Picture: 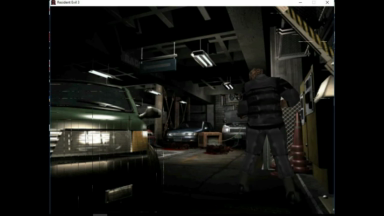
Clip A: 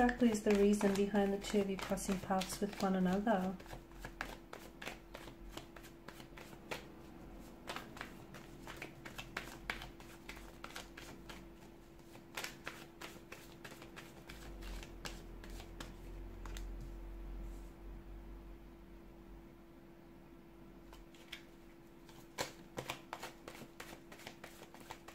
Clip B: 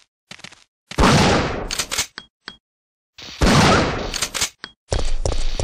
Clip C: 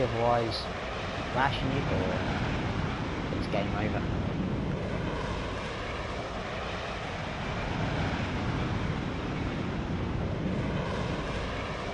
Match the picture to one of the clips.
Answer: B